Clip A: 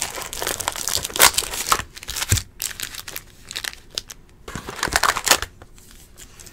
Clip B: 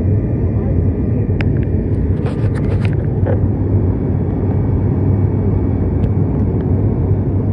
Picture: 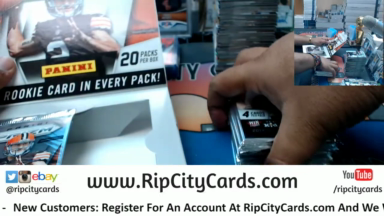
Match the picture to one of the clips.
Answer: A